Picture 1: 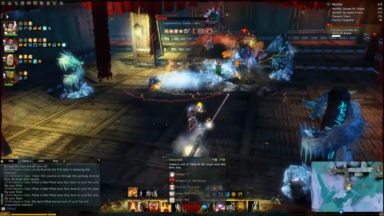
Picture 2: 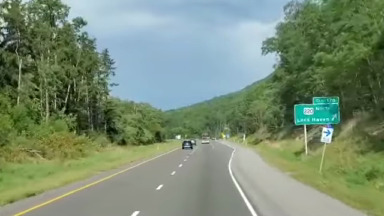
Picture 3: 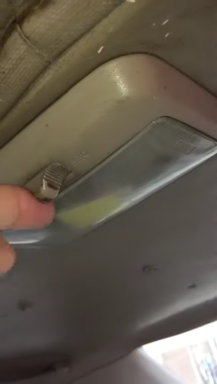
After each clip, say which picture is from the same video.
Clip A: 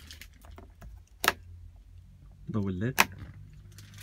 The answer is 3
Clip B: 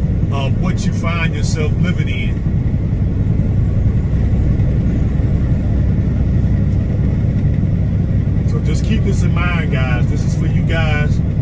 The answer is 2